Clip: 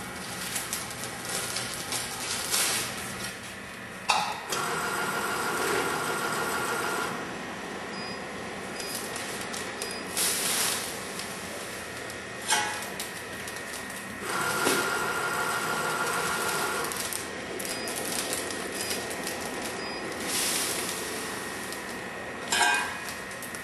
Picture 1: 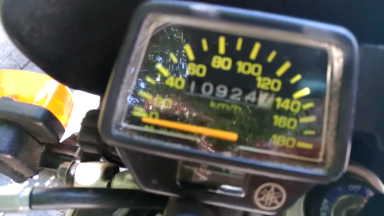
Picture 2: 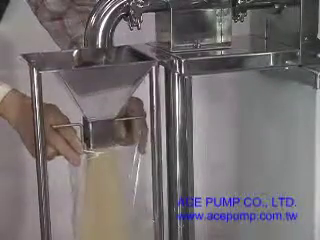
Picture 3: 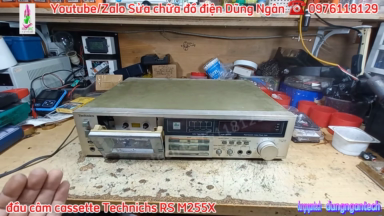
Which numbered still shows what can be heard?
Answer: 2